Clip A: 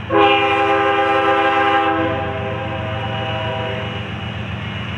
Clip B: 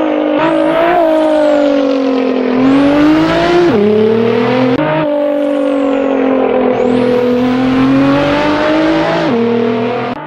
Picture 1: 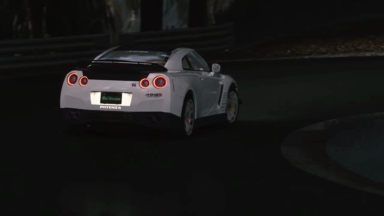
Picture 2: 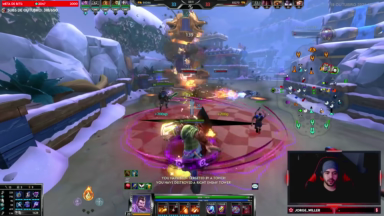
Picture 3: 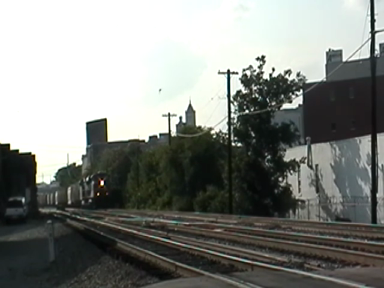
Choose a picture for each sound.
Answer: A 3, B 1